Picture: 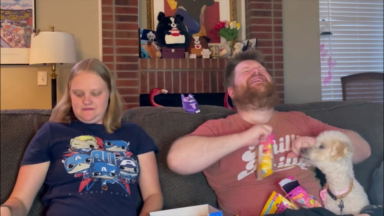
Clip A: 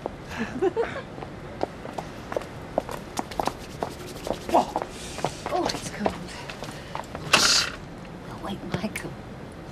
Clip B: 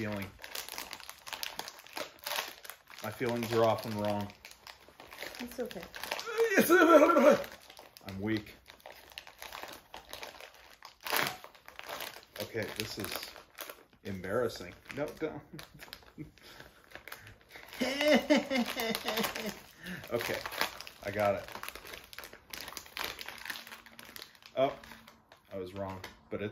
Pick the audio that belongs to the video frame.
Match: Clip B